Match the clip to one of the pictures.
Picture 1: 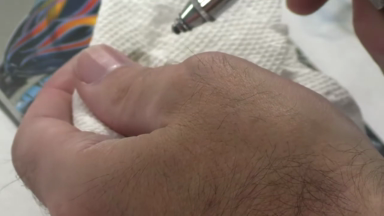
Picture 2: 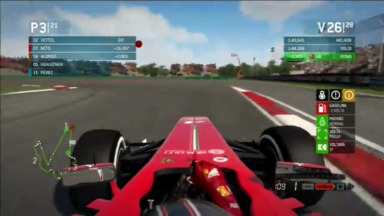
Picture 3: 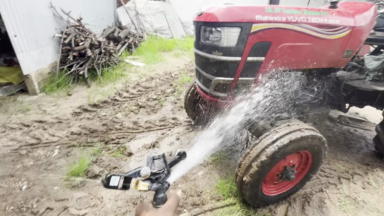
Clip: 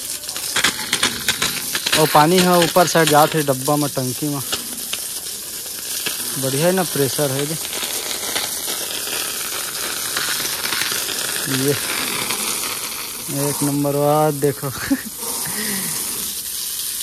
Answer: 3